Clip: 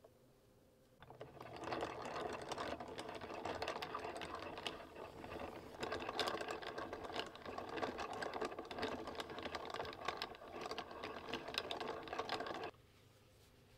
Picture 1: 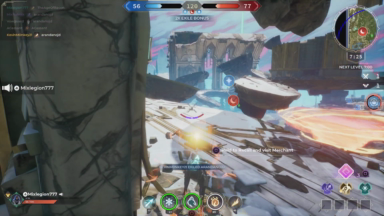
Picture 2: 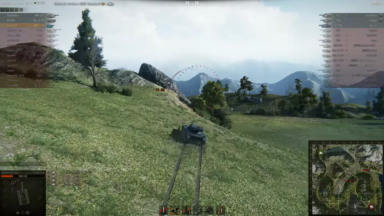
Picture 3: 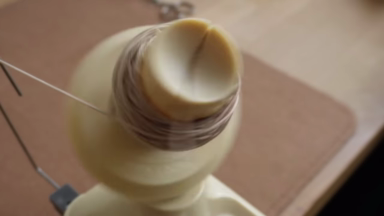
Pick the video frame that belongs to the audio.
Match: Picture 3